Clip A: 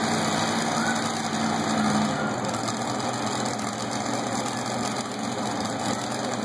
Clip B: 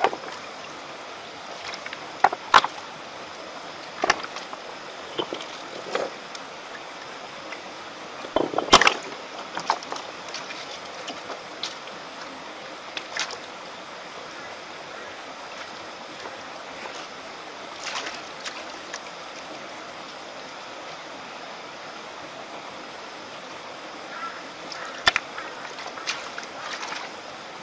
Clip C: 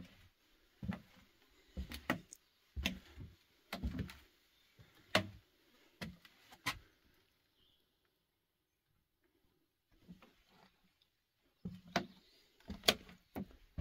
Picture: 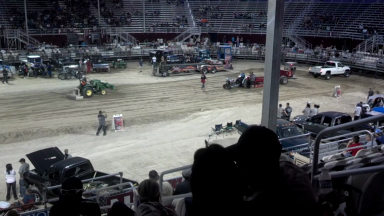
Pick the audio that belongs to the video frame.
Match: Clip A